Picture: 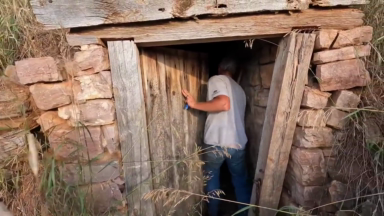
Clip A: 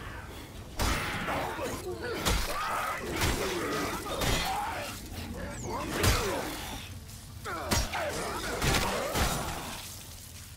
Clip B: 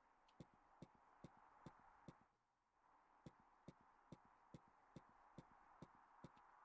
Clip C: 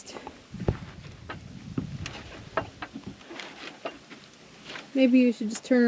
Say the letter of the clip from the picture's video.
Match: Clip C